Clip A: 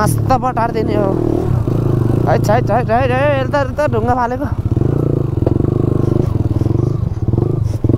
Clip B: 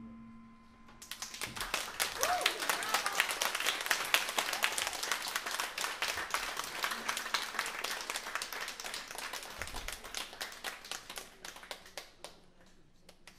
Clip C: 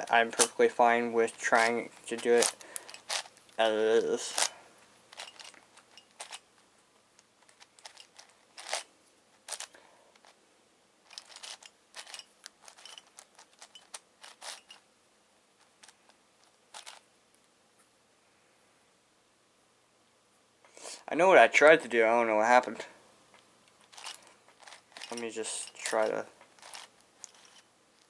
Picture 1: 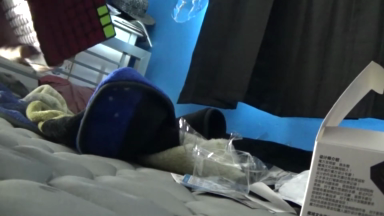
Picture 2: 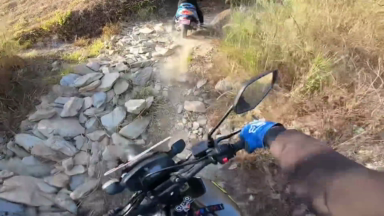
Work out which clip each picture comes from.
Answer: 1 C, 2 A